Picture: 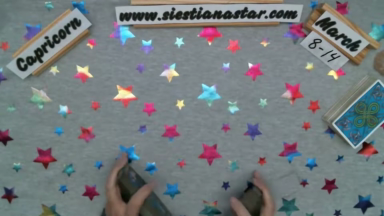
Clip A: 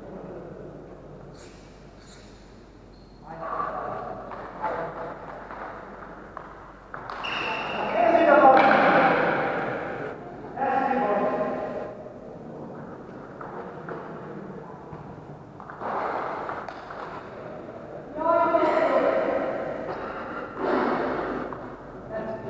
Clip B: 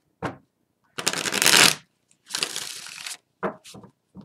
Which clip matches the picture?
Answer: B